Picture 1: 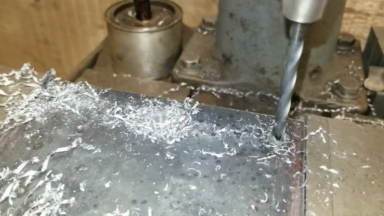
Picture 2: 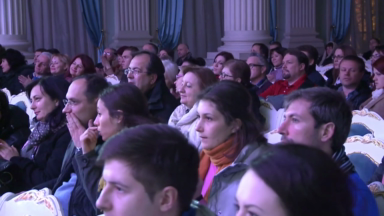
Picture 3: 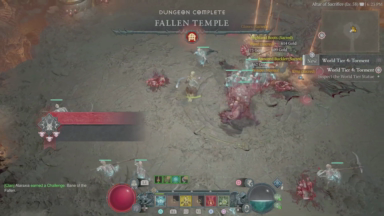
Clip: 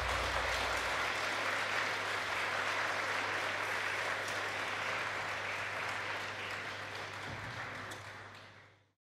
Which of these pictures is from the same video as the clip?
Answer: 2